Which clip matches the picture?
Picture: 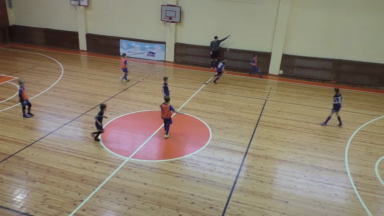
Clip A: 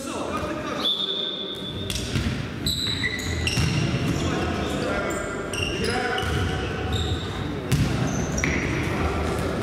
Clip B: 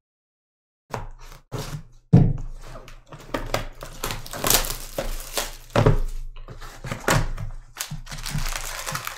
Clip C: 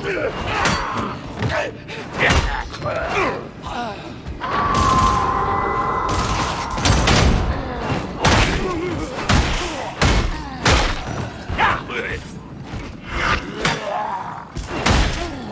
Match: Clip A